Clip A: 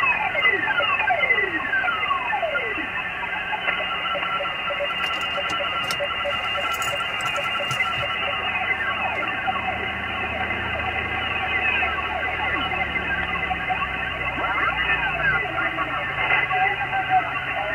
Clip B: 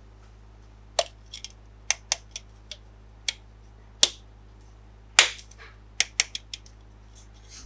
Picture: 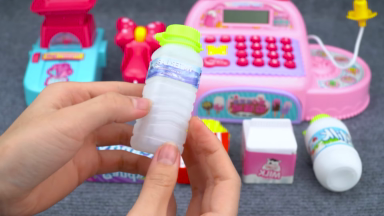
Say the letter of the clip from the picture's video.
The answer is B